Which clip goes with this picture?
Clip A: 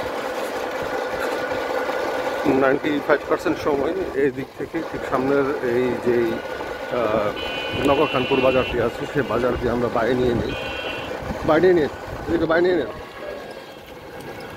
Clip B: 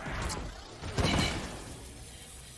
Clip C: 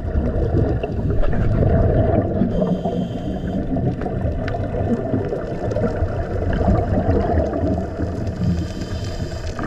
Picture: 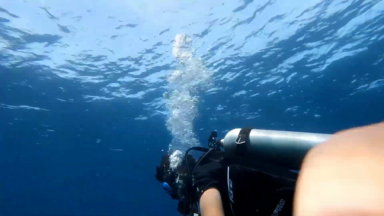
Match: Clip C